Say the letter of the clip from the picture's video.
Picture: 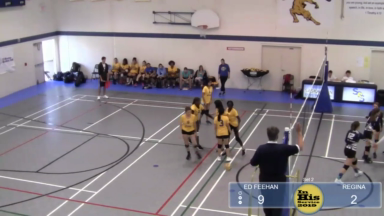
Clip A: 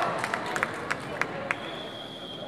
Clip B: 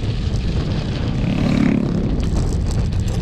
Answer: A